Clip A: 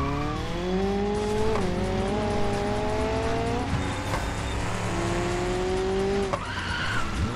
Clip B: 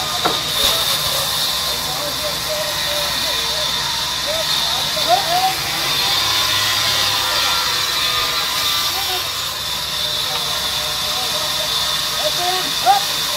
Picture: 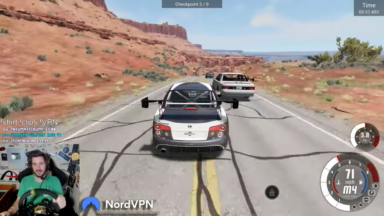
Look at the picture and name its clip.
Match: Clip A